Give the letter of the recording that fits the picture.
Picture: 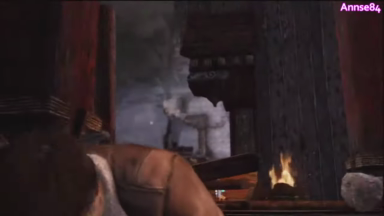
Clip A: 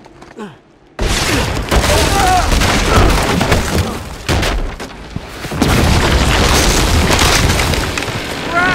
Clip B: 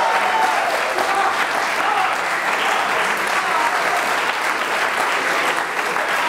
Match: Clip A